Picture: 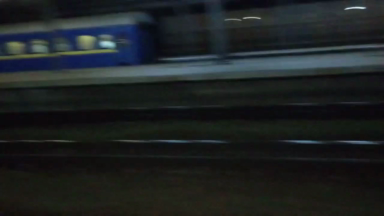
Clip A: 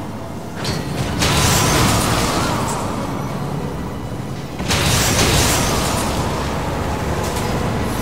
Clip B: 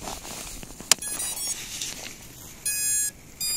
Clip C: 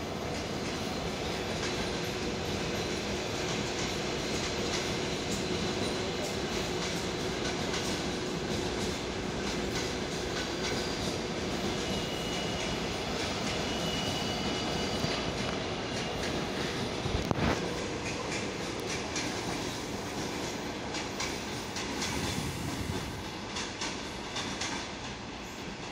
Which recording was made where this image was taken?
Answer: C